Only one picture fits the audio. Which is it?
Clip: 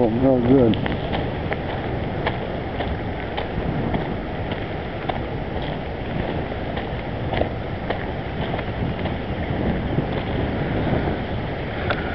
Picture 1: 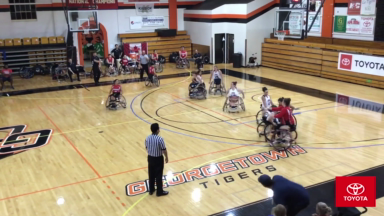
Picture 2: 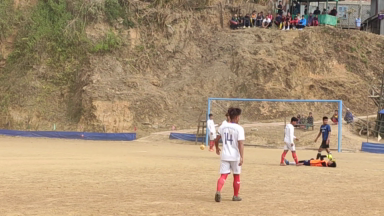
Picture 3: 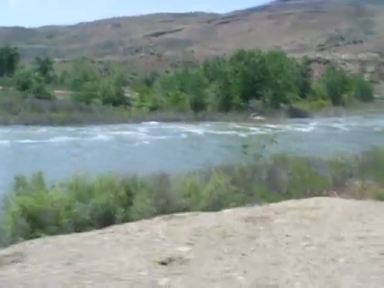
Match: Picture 3